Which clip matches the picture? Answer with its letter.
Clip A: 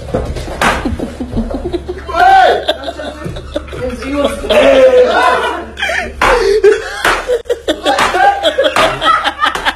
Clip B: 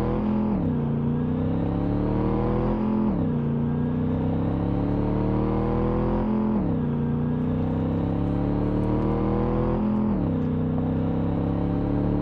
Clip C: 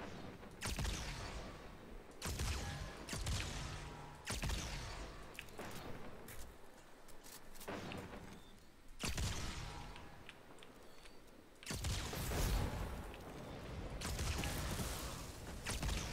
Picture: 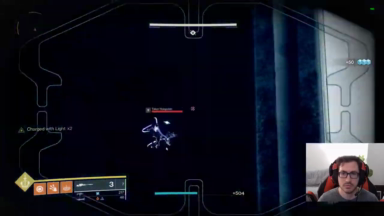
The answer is C